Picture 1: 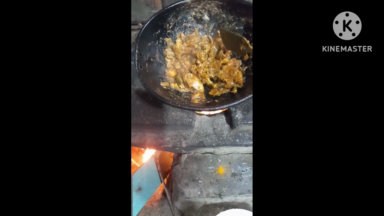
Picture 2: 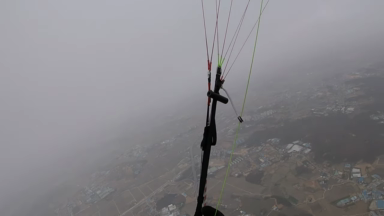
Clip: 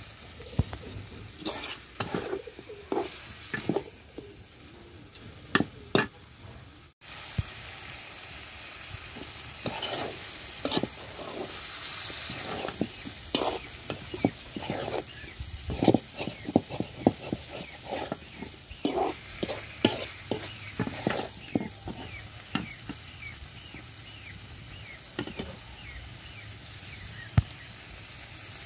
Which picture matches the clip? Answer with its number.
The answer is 1